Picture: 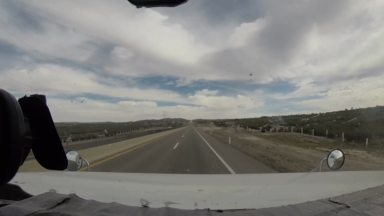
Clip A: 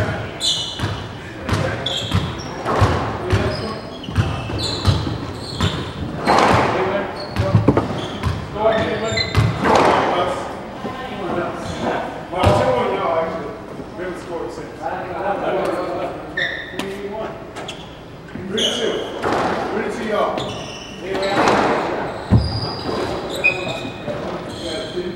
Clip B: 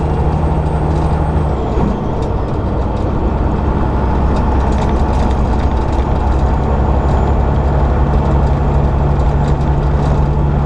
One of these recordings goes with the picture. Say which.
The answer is B